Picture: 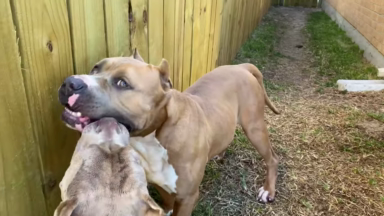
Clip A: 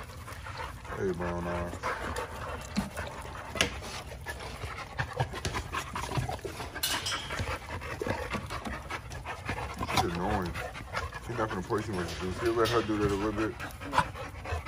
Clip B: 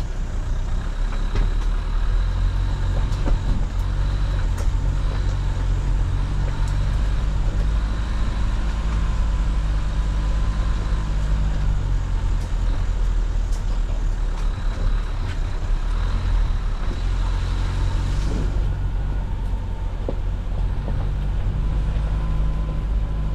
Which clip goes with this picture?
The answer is A